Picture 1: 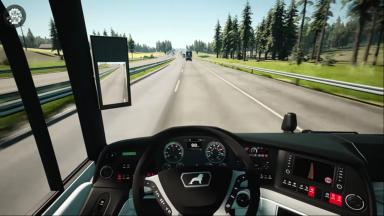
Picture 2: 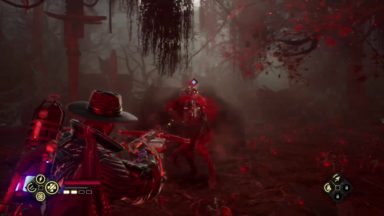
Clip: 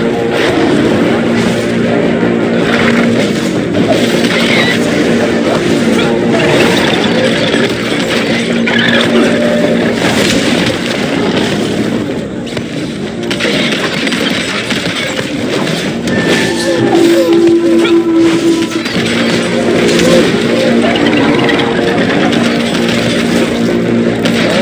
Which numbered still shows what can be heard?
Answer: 2